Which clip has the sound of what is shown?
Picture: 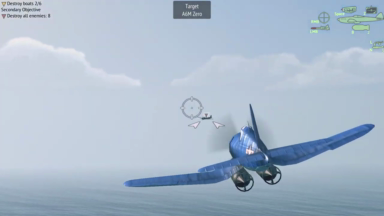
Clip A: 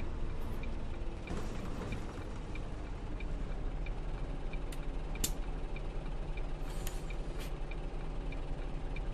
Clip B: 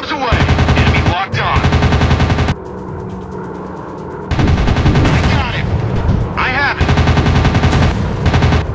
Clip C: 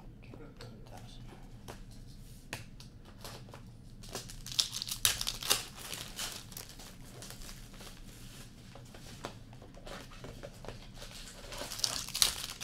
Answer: B